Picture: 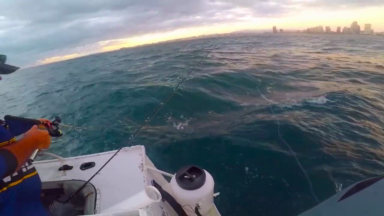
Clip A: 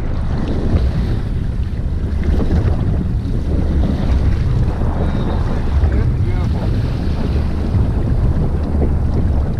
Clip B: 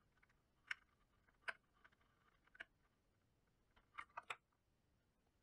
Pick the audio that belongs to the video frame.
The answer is A